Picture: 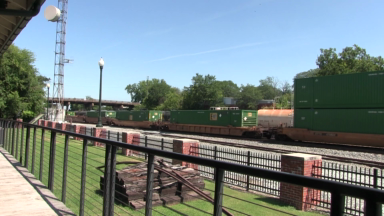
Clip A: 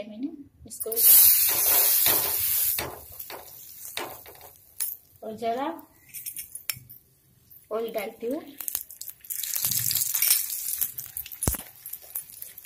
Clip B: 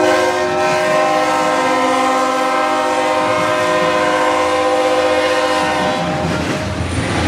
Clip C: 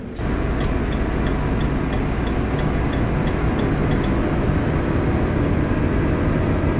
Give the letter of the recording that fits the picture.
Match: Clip B